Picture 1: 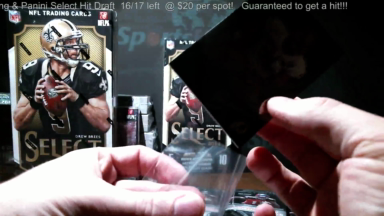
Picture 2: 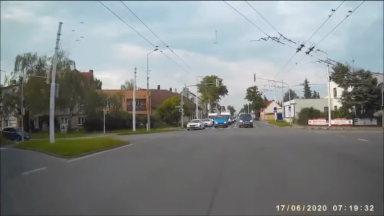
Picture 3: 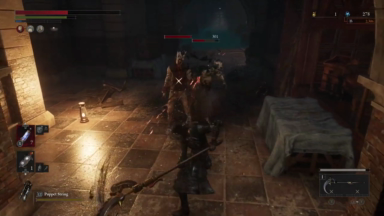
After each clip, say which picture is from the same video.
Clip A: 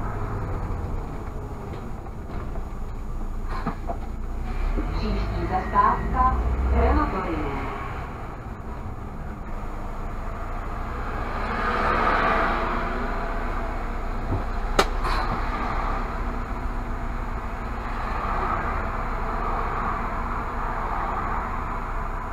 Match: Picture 2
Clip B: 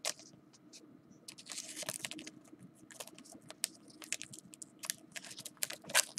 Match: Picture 1